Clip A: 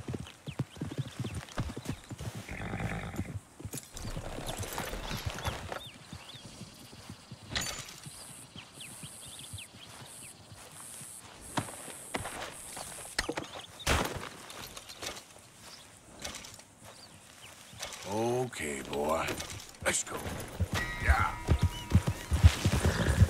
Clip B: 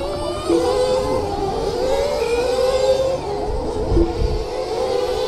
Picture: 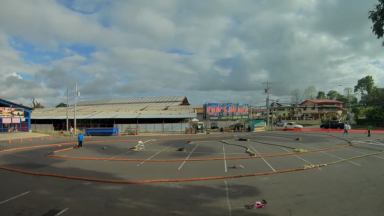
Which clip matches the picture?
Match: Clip B